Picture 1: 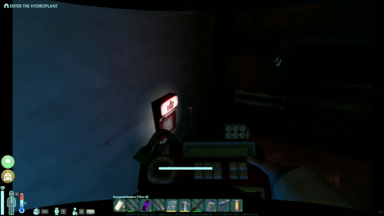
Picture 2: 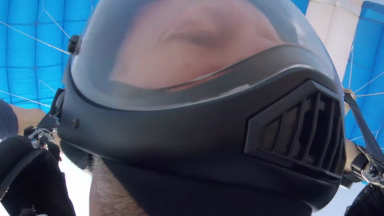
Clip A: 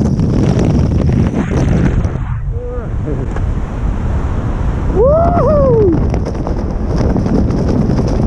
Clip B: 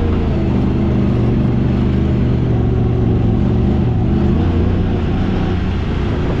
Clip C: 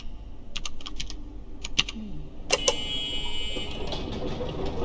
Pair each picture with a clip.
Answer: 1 C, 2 A